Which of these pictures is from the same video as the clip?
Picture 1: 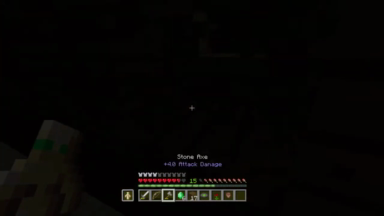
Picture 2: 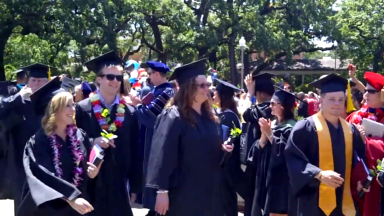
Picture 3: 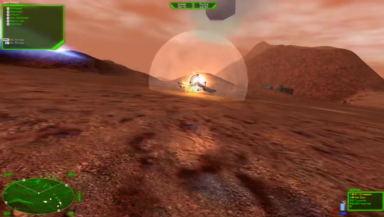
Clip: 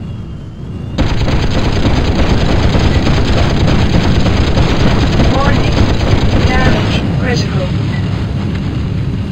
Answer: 3